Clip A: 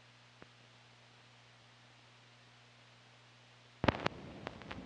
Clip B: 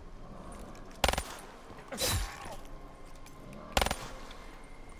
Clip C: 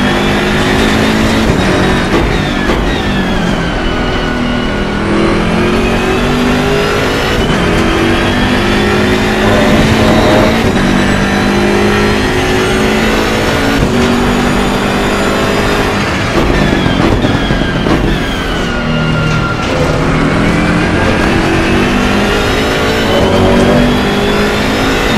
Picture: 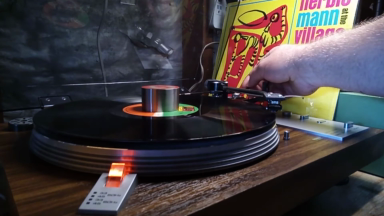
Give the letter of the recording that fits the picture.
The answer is A